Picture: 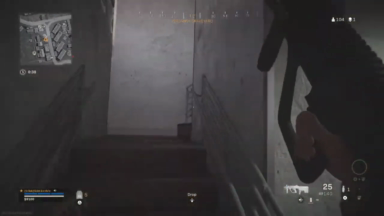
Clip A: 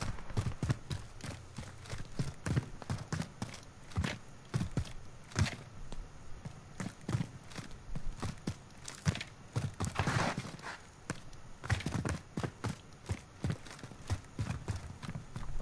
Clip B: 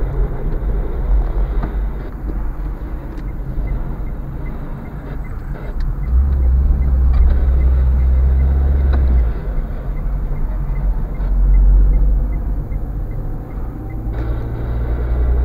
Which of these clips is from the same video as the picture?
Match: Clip A